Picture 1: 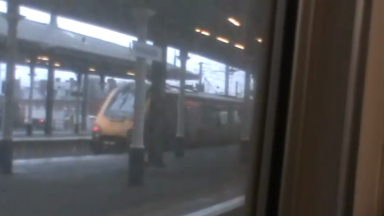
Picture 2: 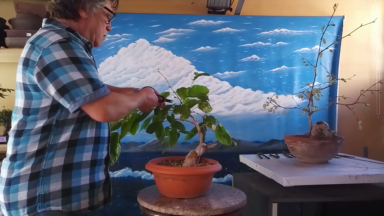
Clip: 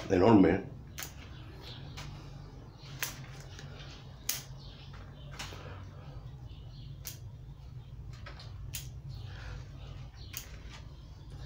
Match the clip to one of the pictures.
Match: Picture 2